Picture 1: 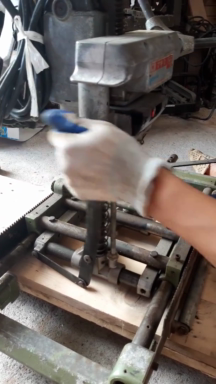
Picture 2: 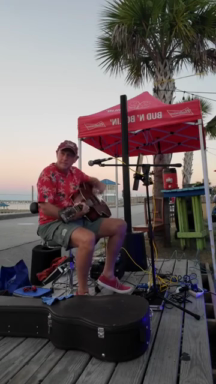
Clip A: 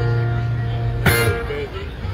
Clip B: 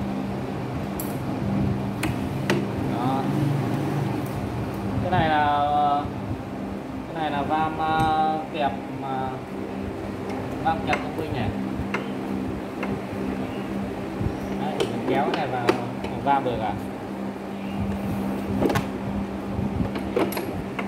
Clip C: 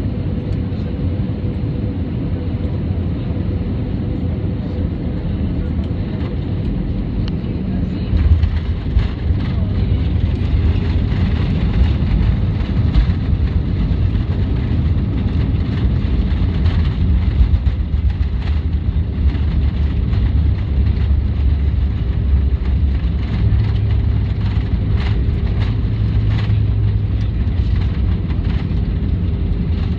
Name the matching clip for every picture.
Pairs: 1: B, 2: A